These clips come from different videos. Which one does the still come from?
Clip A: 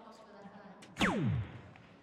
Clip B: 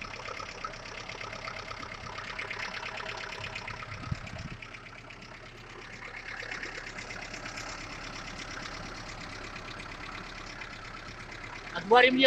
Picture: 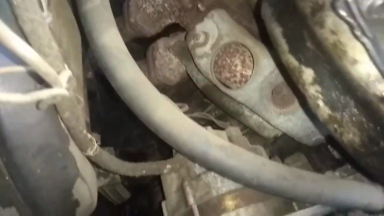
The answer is B